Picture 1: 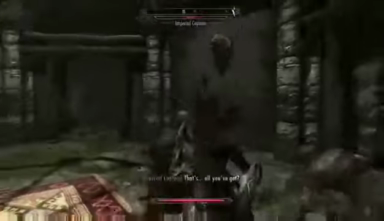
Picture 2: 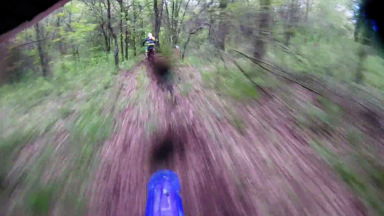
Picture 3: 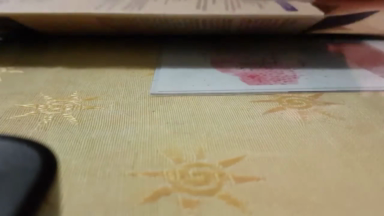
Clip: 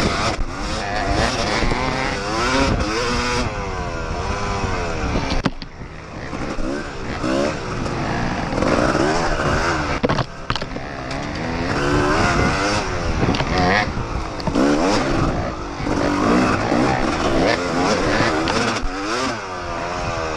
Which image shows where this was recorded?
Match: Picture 2